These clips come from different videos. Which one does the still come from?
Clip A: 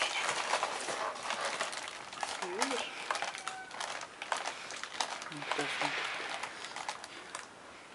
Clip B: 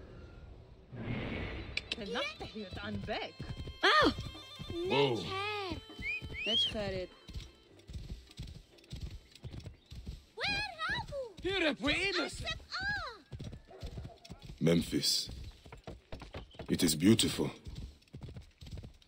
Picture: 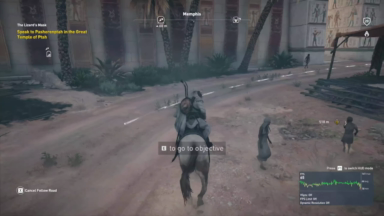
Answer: B